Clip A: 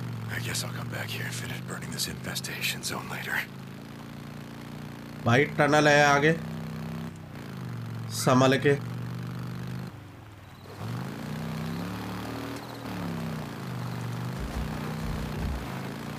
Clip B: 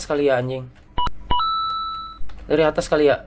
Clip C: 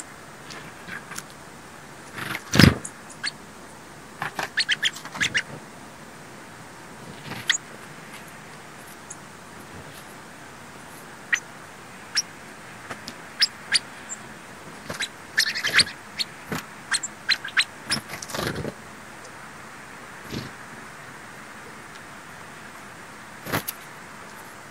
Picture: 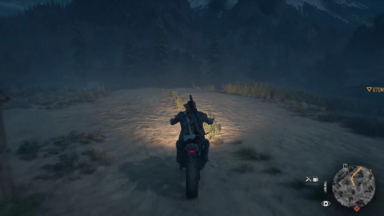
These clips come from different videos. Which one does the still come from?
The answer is A